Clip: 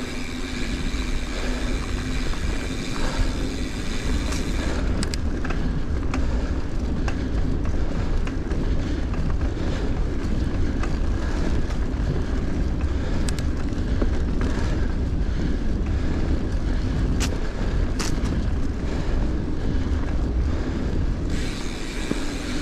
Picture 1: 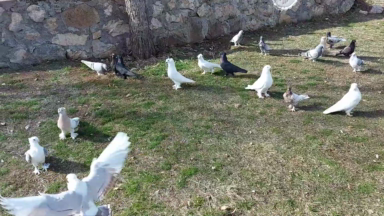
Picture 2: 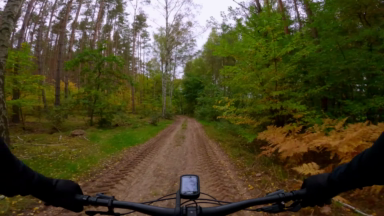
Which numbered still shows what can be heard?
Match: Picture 2